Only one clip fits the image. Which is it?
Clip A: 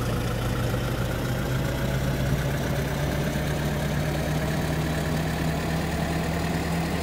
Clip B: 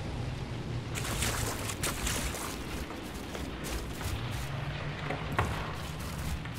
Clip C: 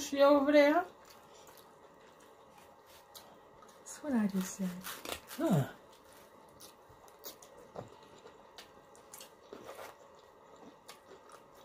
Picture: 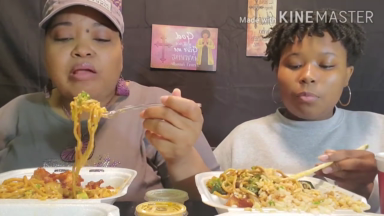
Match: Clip C